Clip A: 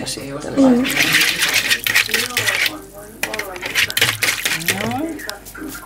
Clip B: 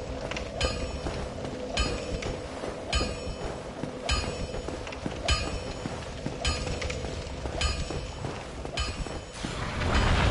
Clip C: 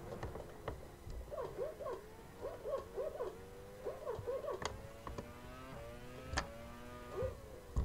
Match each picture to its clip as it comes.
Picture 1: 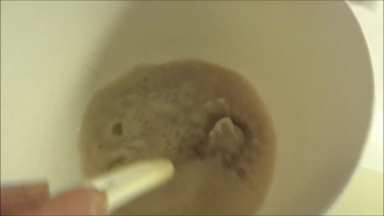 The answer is A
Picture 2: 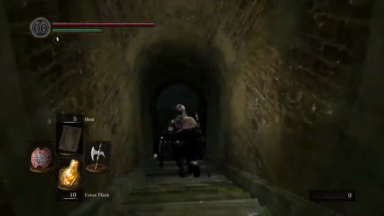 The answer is B